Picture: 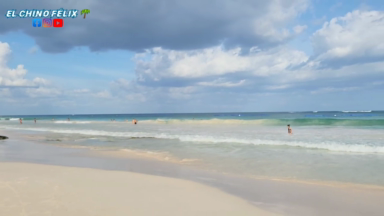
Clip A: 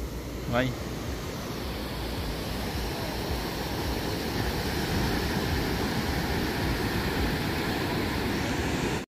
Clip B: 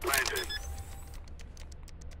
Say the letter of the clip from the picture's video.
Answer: A